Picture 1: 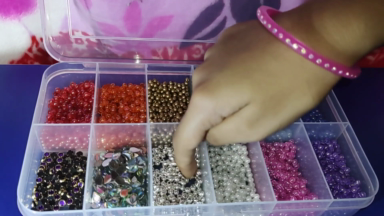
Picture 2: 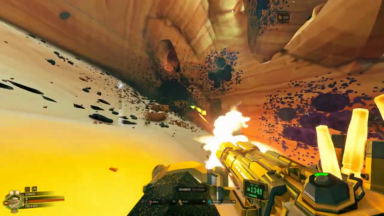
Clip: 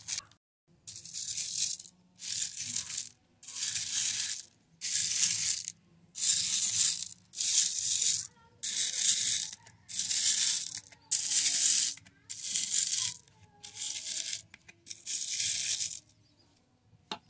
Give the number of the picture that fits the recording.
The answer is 1